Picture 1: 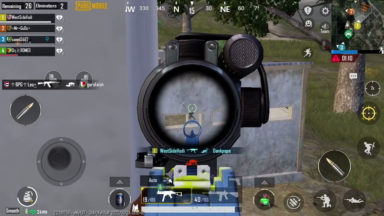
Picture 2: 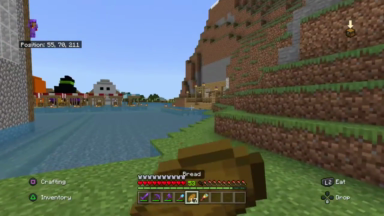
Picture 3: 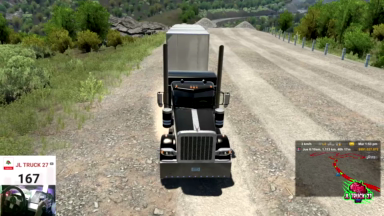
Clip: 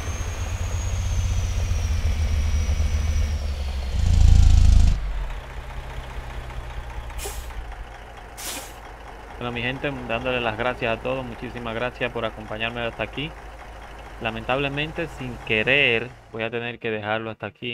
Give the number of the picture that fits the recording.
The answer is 3